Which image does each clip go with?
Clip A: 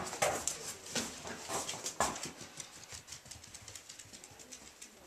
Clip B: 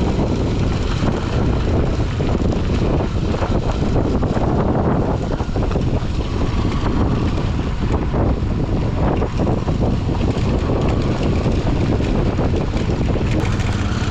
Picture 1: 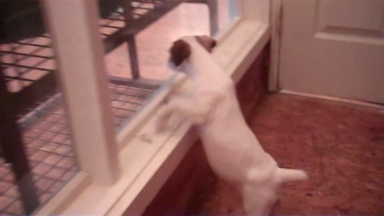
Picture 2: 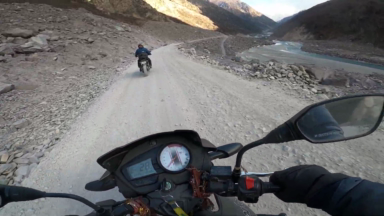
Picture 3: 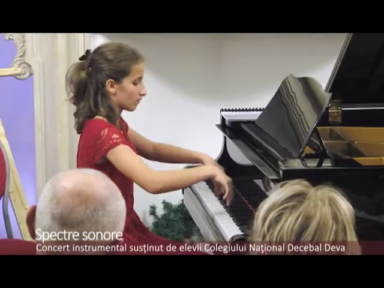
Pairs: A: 1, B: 2